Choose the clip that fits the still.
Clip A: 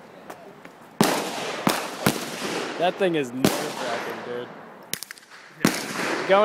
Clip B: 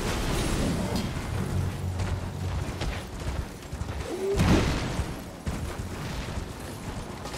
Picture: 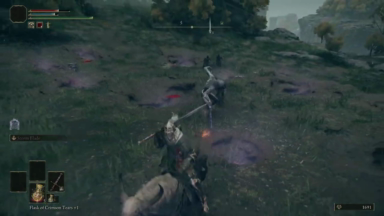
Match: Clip B